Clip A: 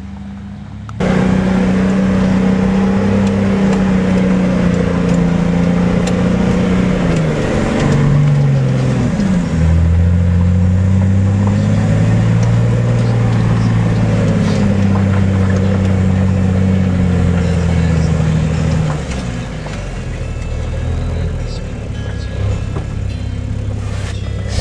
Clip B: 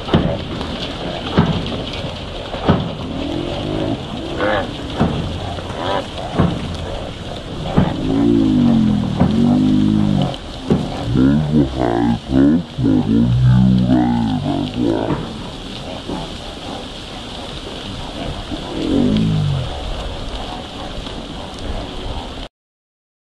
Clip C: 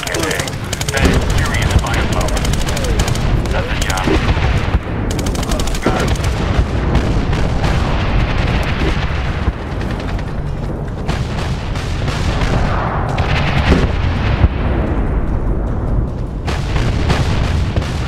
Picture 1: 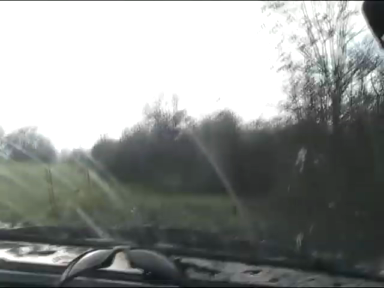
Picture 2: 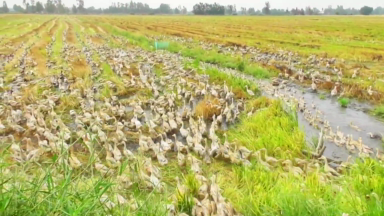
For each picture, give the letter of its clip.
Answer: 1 A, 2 B